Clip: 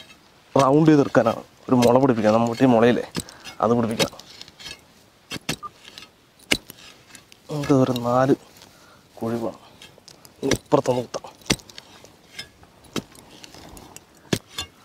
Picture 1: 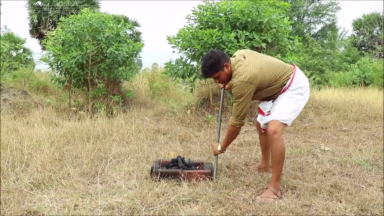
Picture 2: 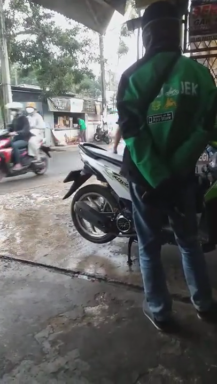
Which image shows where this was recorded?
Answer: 1